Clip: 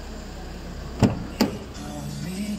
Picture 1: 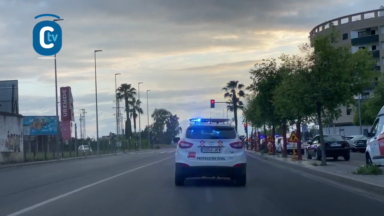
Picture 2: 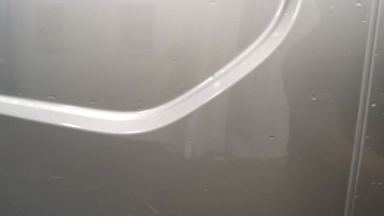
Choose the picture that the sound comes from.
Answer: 2